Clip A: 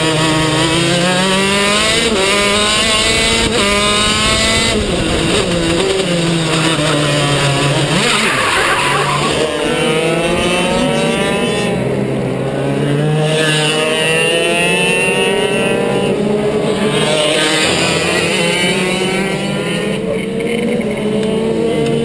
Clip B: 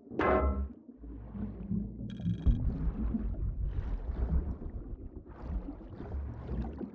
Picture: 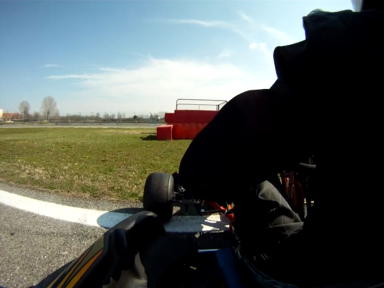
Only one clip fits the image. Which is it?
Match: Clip A